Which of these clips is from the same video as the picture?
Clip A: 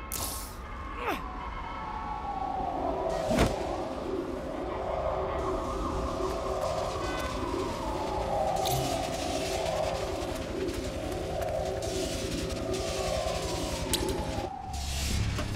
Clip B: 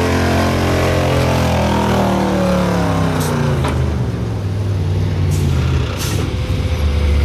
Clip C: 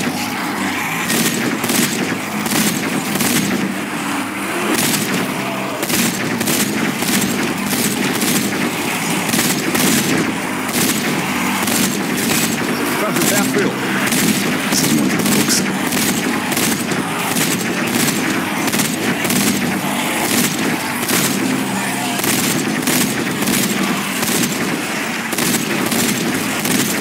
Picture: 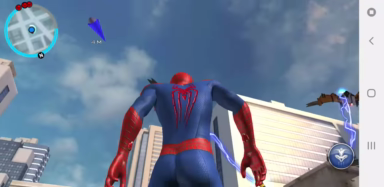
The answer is A